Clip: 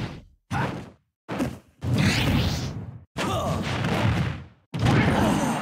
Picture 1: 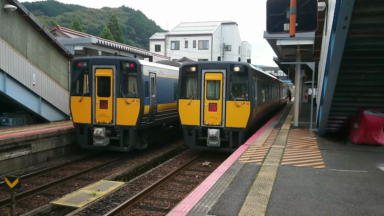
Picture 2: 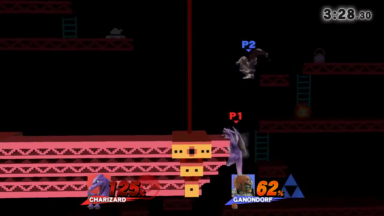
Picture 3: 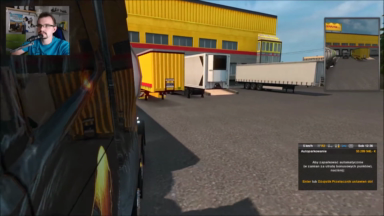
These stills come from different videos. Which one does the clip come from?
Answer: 2